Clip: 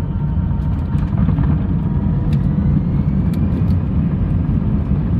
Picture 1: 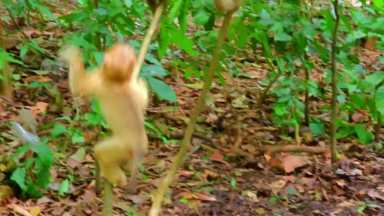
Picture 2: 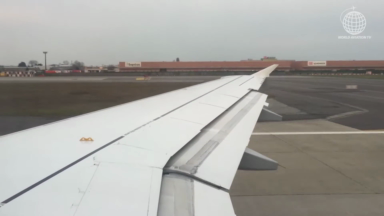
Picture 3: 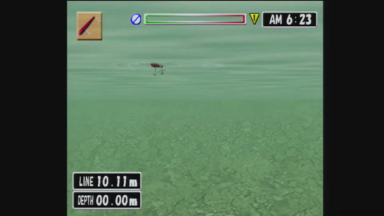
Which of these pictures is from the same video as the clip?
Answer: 2